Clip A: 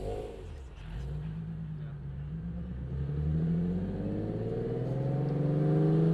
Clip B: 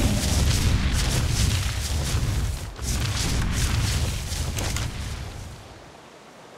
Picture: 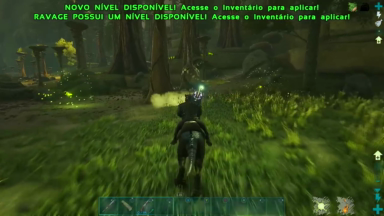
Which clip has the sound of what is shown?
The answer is B